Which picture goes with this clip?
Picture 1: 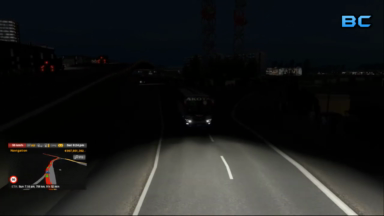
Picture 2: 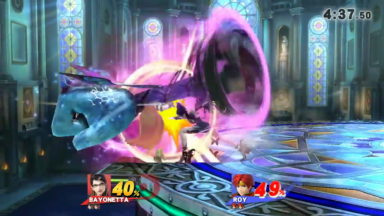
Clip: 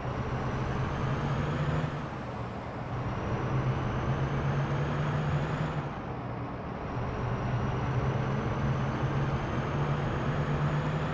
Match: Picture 1